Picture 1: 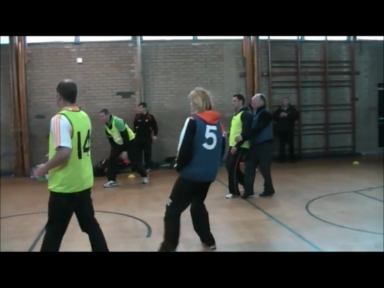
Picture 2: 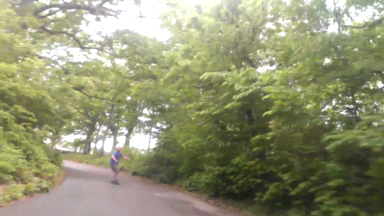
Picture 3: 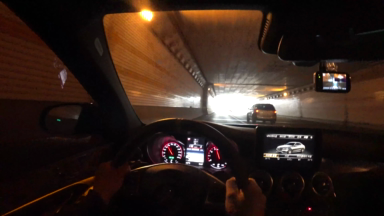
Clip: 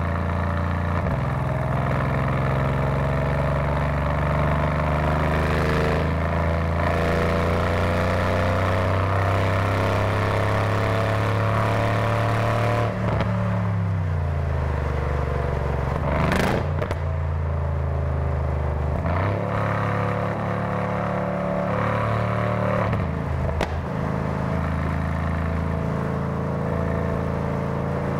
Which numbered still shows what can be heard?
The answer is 3